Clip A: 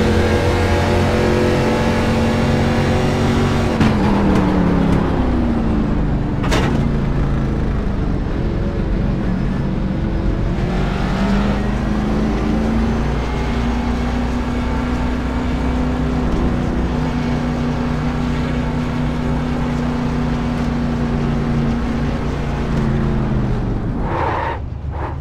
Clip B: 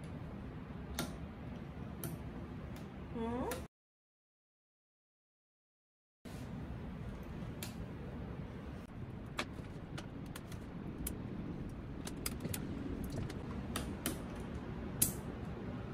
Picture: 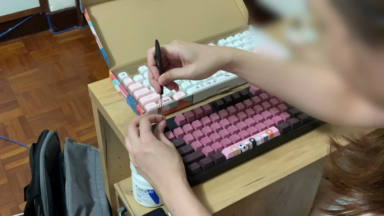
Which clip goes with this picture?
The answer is B